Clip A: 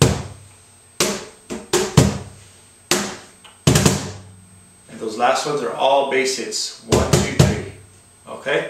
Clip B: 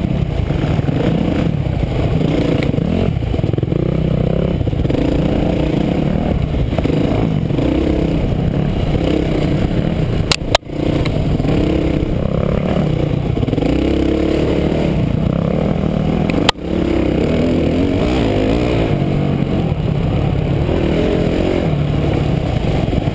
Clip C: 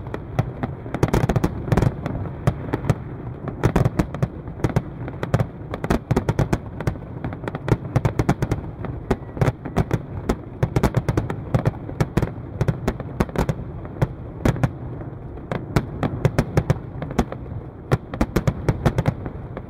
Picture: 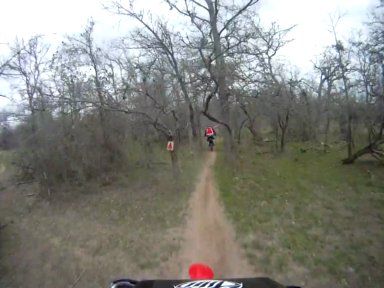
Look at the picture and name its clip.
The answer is B